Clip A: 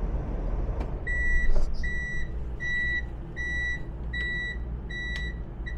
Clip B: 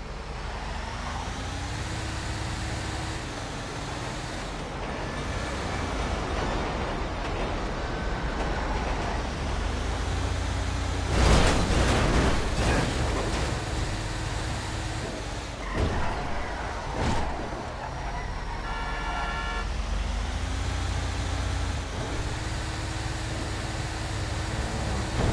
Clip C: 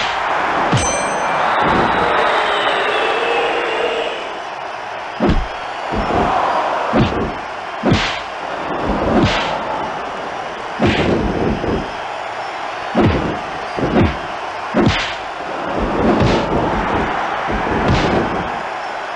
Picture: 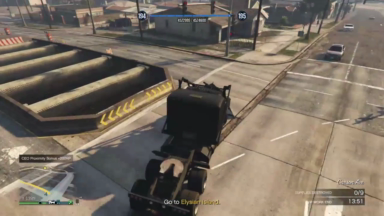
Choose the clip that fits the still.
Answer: B